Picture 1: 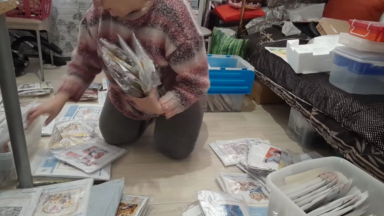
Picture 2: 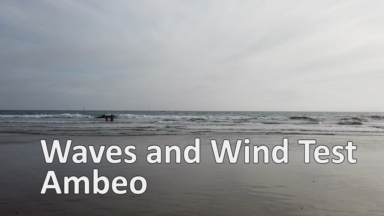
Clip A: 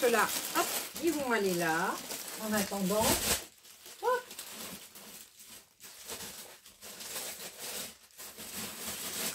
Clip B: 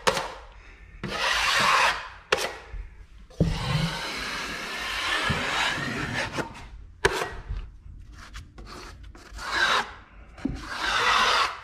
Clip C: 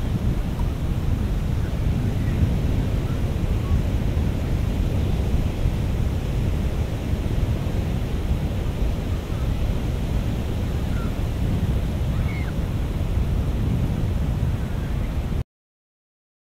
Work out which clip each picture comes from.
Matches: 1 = A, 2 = C